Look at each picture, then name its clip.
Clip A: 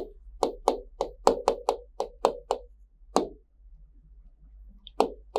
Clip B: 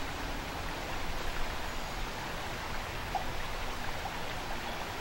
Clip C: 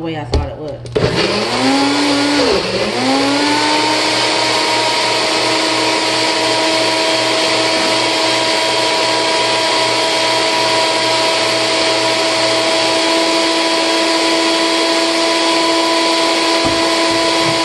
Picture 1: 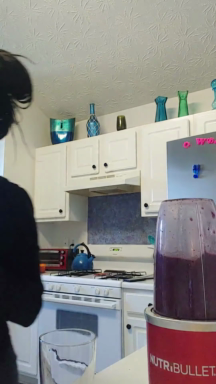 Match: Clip C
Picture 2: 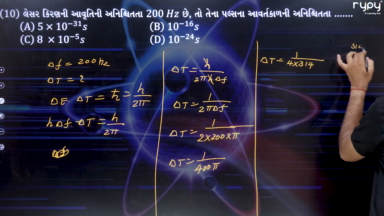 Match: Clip A